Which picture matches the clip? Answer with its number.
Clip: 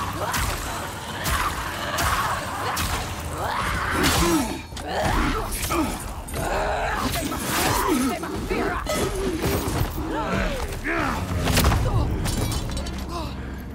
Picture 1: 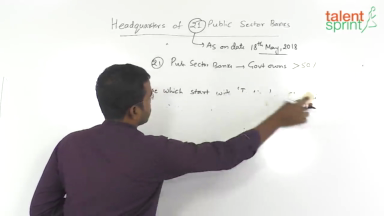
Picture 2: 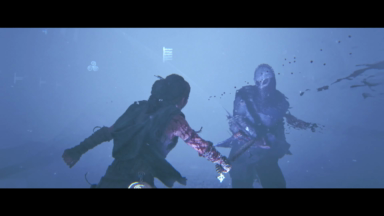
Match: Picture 2